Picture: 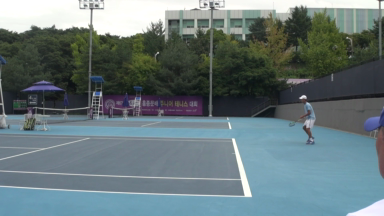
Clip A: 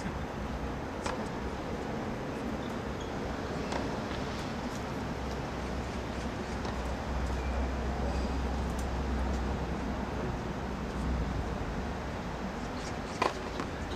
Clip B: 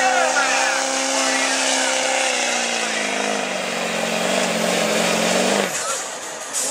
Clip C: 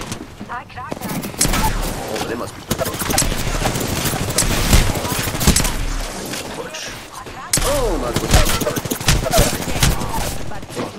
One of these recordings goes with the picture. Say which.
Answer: A